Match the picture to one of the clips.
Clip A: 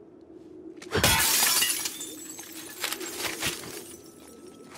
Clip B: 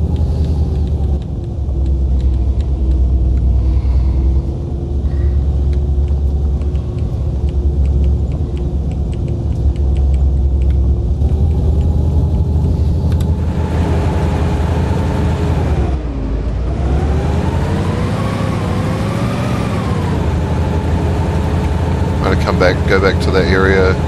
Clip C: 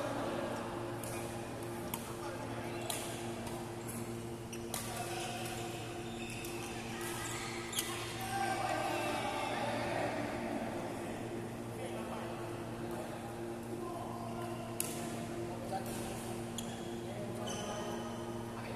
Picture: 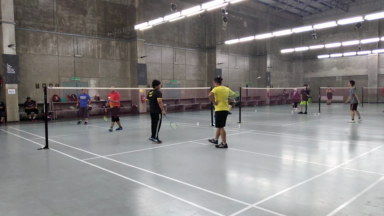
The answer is C